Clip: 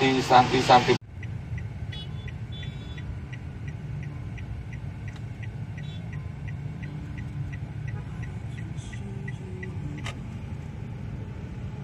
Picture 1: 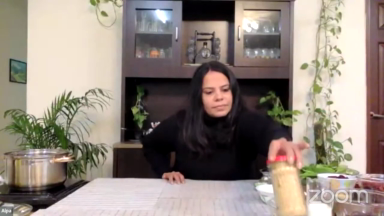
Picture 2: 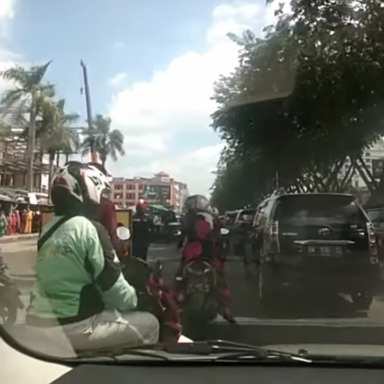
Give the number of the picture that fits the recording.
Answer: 2